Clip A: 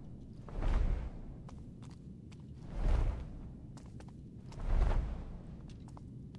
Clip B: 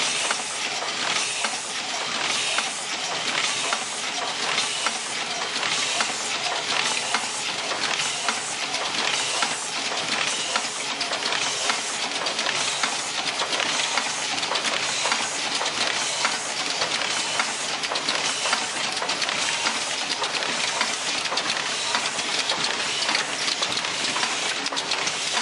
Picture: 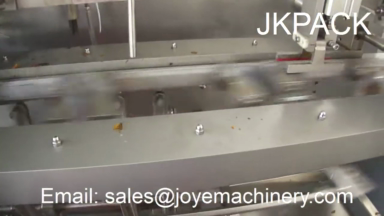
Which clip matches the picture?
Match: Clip B